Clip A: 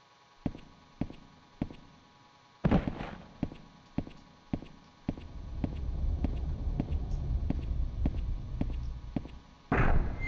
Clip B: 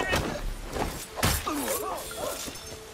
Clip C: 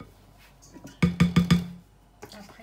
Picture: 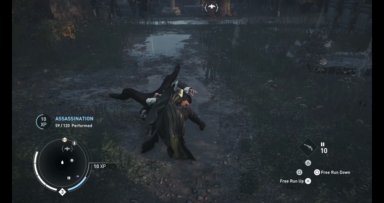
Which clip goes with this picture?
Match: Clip B